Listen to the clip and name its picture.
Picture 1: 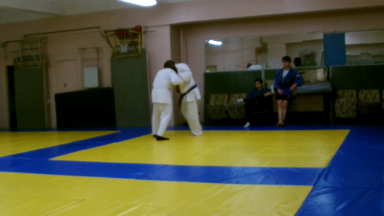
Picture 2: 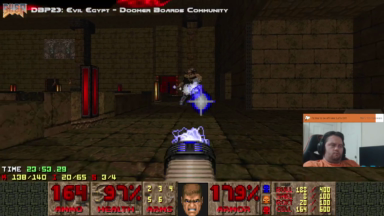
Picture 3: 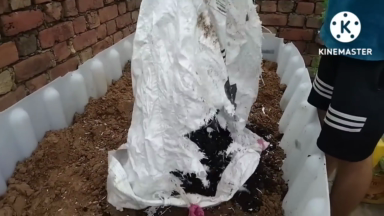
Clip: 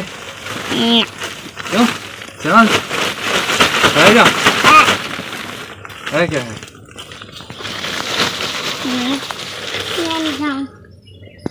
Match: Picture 3